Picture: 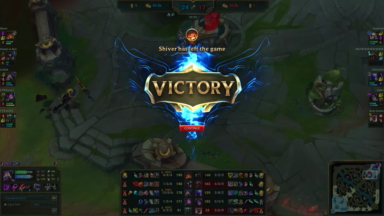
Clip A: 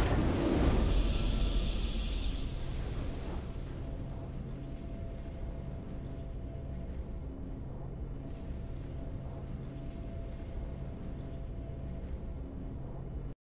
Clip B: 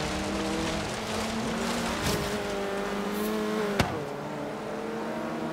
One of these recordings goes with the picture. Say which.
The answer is A